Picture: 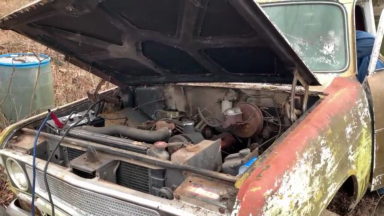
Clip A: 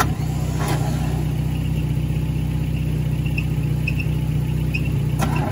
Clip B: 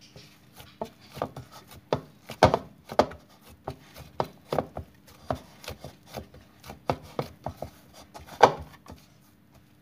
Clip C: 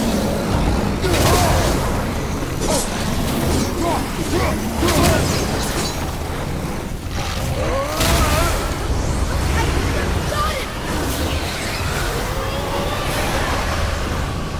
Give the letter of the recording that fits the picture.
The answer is A